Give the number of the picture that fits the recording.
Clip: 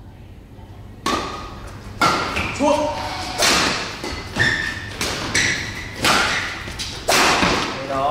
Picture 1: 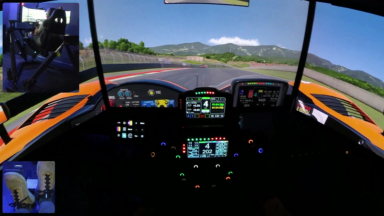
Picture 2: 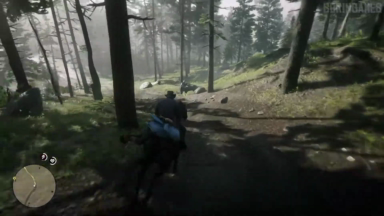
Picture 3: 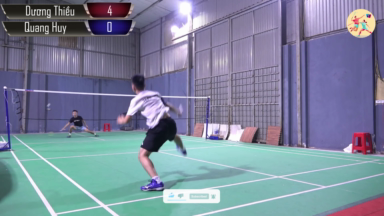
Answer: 3